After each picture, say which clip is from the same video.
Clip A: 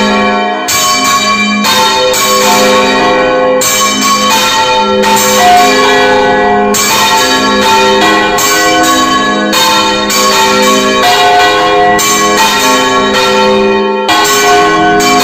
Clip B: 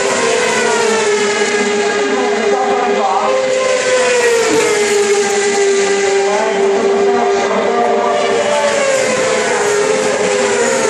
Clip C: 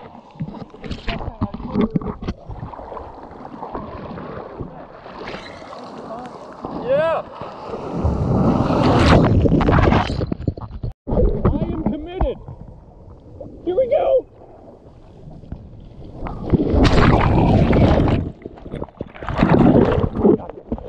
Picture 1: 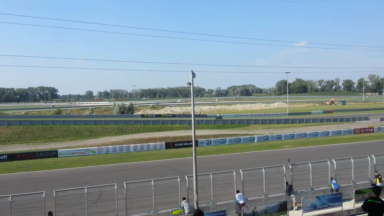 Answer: B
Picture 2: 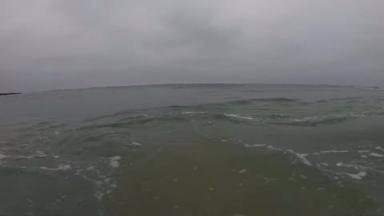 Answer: C